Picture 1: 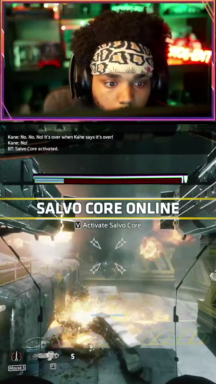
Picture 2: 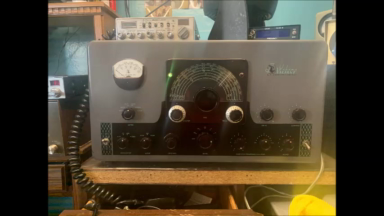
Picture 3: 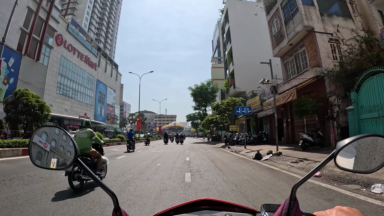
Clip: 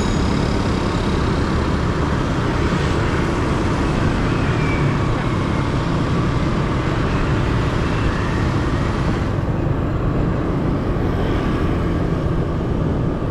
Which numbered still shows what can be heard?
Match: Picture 3